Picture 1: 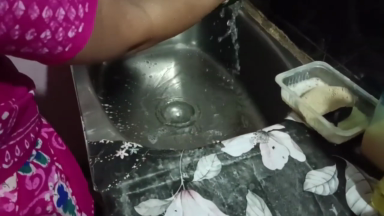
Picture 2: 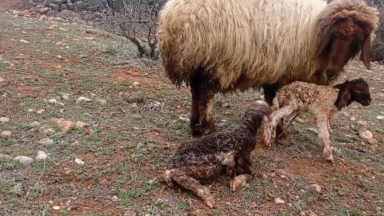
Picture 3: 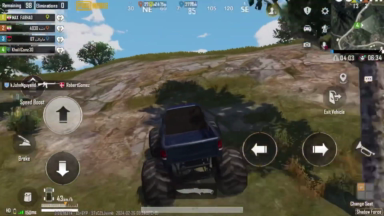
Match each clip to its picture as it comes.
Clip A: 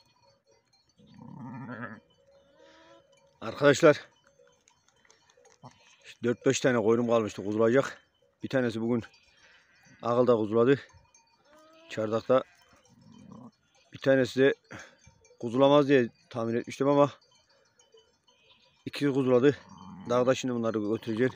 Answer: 2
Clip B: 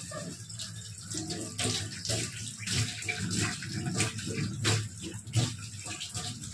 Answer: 1